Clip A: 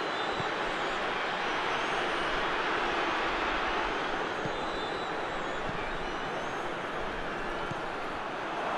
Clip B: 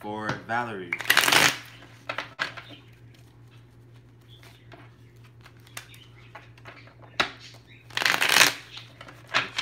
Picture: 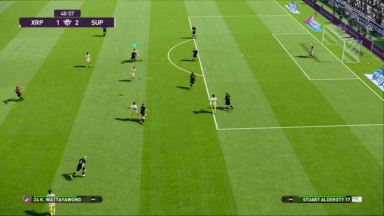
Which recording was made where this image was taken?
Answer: A